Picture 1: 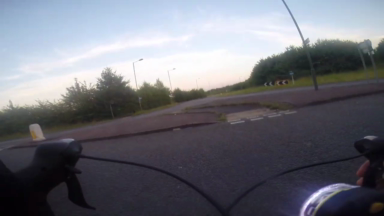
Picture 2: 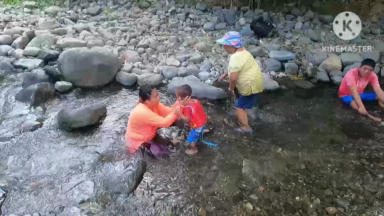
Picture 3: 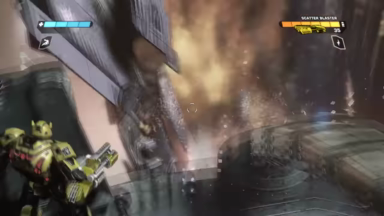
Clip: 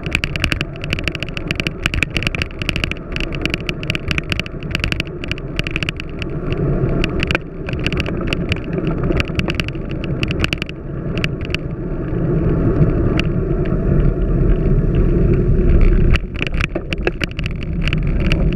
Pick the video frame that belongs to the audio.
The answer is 1